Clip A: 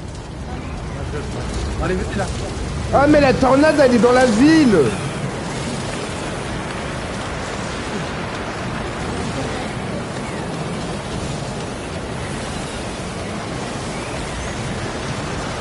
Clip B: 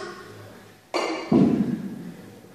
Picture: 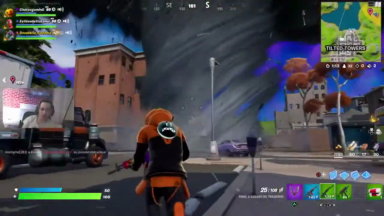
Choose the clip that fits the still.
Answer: A